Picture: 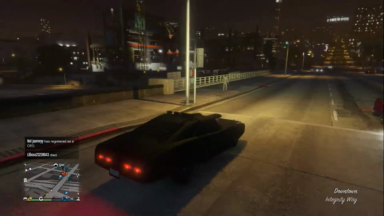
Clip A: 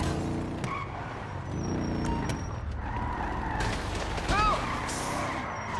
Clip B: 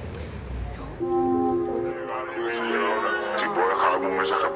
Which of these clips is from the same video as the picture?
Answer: A